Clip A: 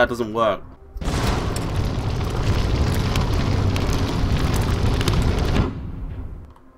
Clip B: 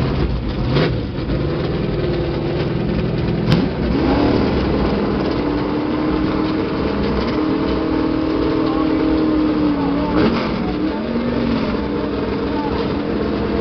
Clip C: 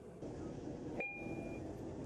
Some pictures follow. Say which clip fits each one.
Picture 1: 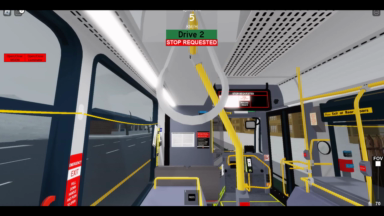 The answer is C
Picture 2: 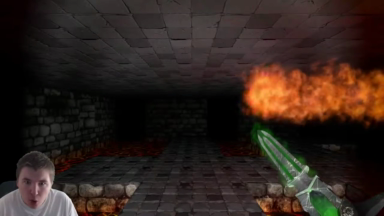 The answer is A